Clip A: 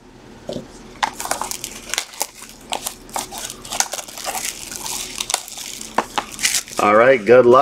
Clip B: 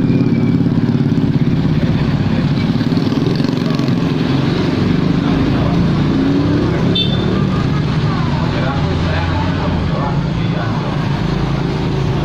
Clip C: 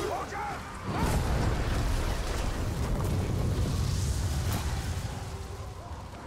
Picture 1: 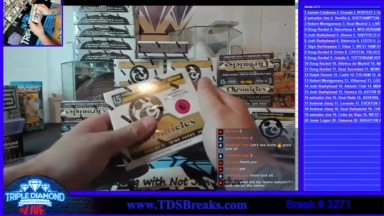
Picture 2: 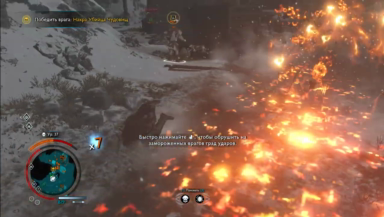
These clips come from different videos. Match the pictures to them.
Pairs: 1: A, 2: C